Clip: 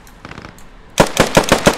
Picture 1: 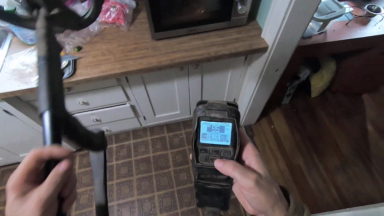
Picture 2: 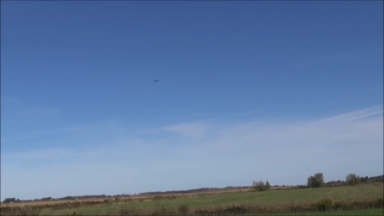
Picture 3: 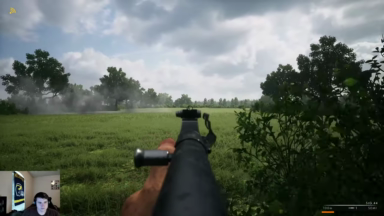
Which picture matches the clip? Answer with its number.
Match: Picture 3